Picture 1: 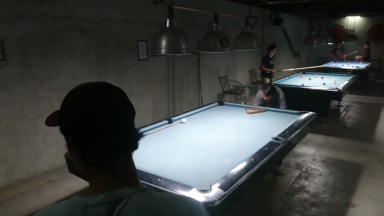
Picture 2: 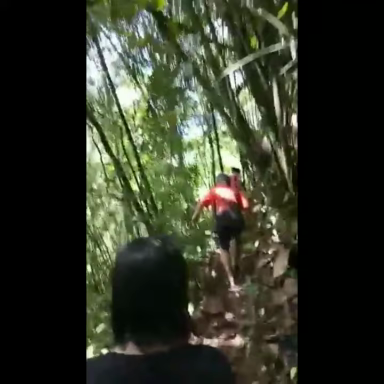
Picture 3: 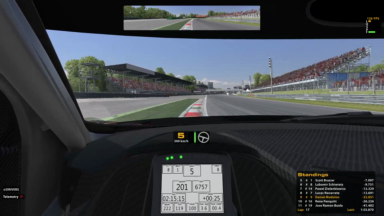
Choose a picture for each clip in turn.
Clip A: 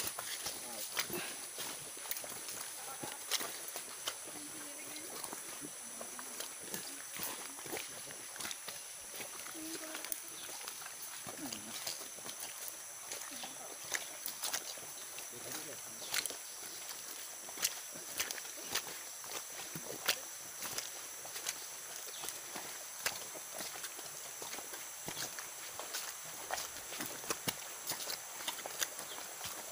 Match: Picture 2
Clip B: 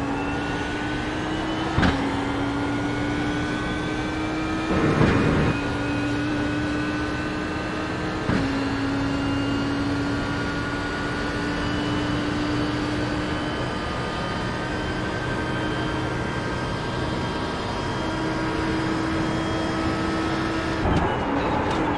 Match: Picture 3